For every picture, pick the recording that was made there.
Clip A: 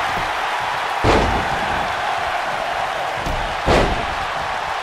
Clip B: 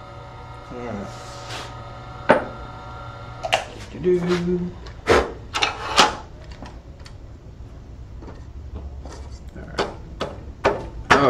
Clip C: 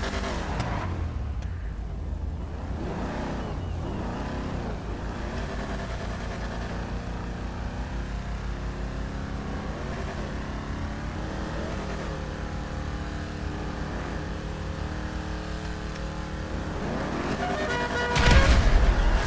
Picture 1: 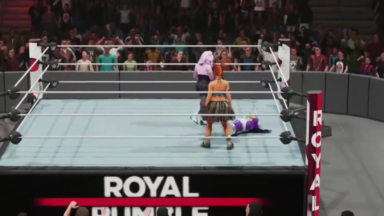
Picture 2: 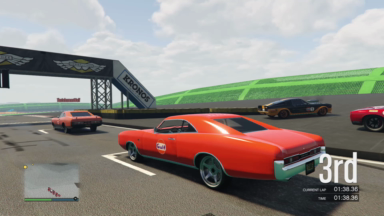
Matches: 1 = A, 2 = C